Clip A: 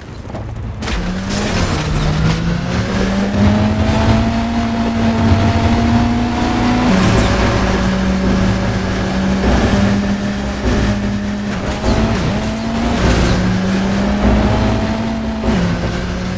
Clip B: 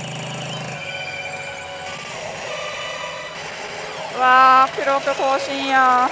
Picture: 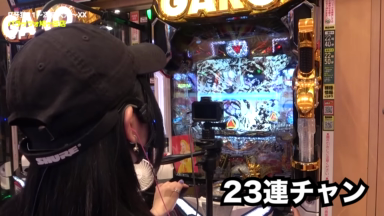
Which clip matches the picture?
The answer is B